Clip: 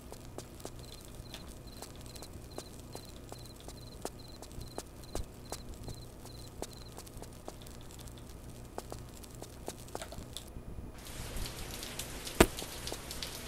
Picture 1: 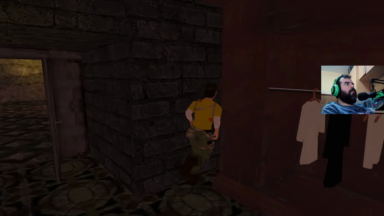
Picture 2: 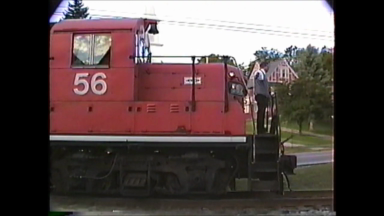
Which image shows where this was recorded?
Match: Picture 1